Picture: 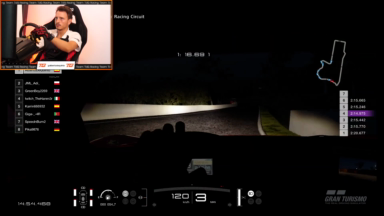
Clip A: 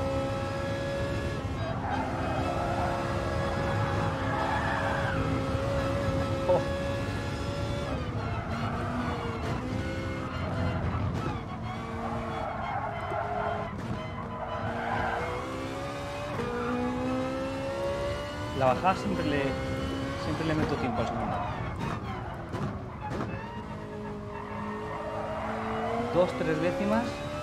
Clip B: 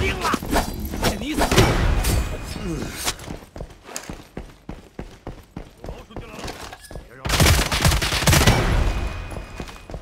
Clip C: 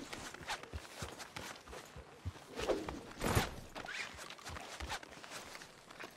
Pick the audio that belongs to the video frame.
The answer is A